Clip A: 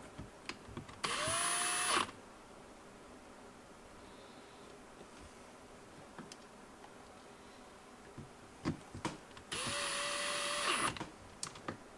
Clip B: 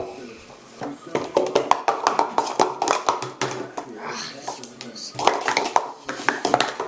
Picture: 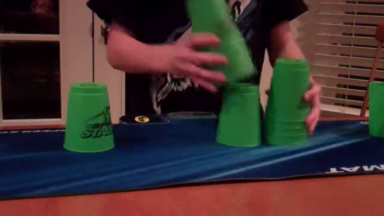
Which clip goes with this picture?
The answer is B